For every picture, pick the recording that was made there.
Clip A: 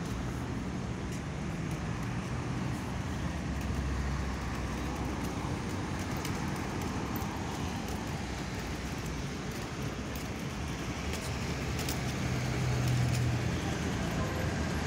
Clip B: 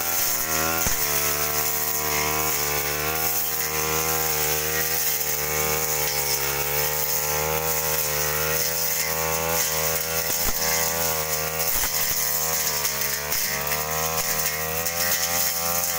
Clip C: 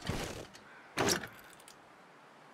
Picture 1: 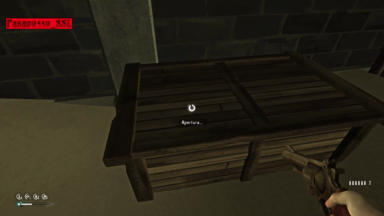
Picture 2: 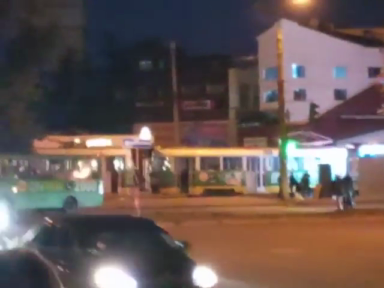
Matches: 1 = C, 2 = A